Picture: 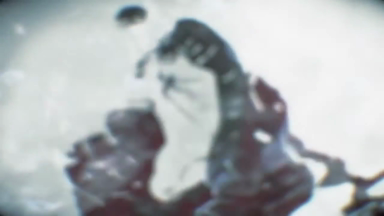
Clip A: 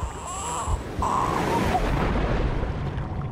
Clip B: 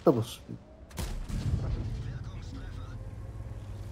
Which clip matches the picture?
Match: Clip A